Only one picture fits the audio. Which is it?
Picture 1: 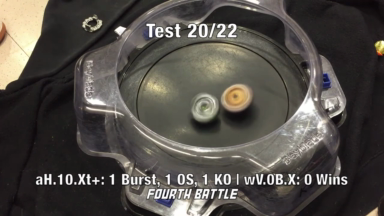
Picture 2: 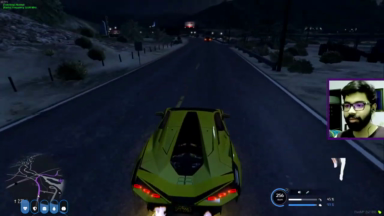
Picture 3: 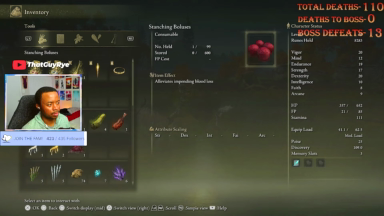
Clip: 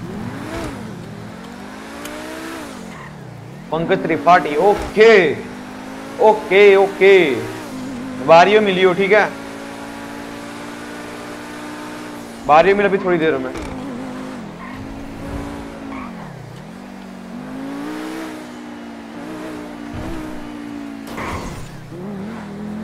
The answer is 2